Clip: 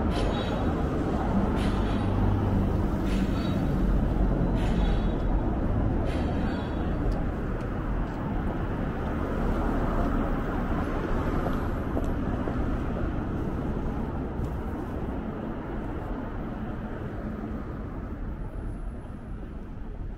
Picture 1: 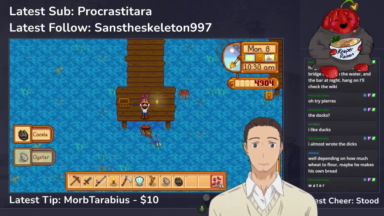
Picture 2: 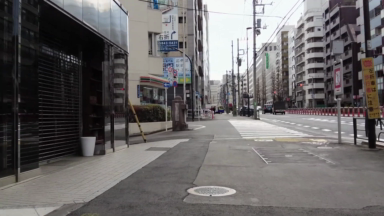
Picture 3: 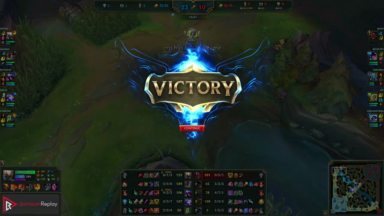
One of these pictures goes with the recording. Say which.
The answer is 2